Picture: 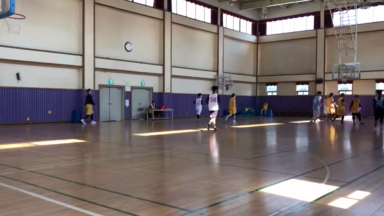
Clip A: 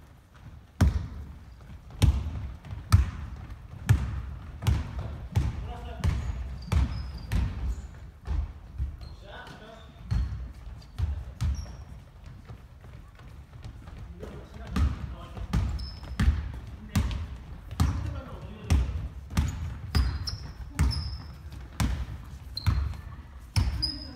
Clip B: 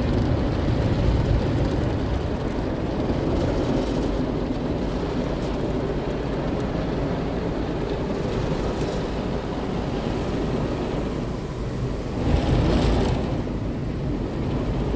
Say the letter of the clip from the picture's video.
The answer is A